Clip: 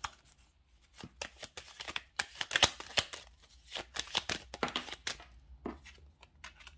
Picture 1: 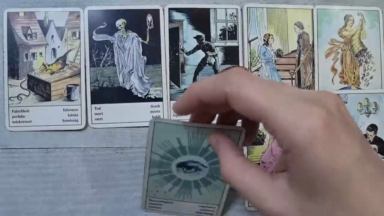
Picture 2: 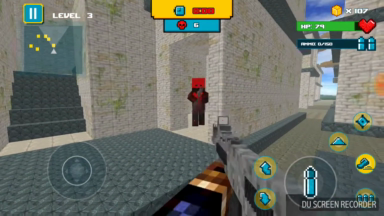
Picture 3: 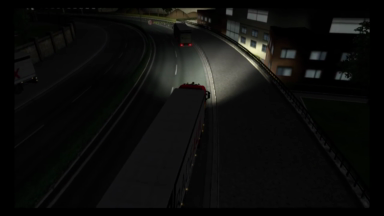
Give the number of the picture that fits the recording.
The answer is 1